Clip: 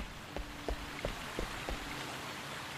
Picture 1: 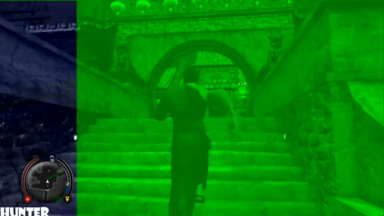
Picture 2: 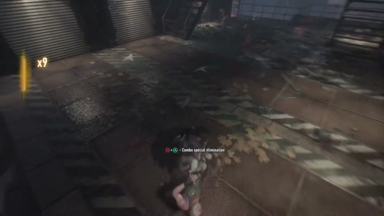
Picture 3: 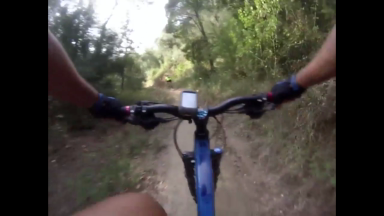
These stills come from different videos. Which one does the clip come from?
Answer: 1